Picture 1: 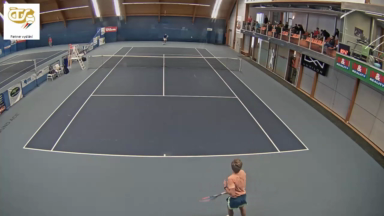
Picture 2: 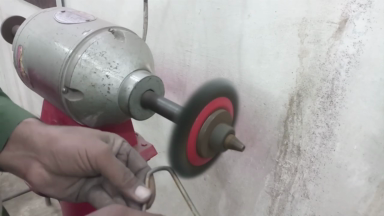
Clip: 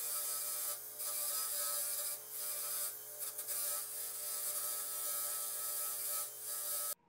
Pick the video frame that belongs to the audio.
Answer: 2